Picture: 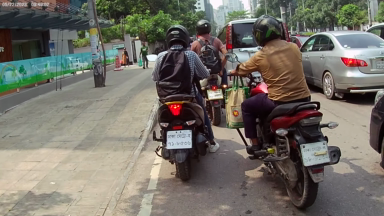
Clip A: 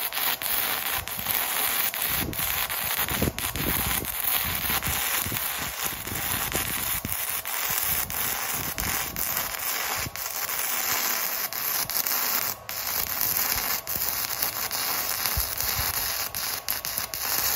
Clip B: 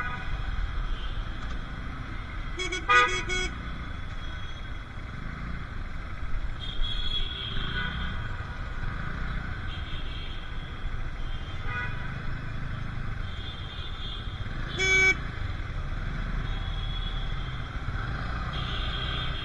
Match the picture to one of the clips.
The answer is B